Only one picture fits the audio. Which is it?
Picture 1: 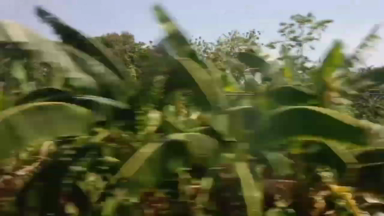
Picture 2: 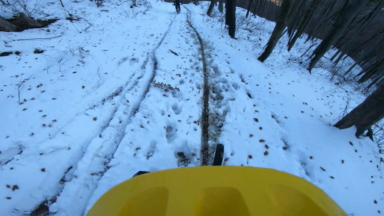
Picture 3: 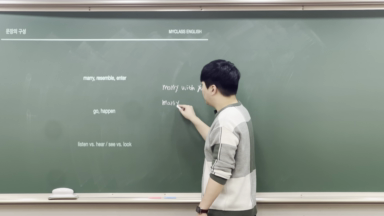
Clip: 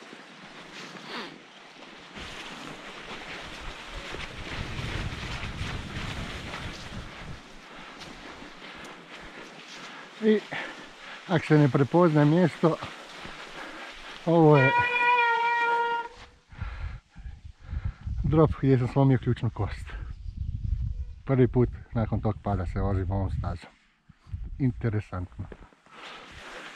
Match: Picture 2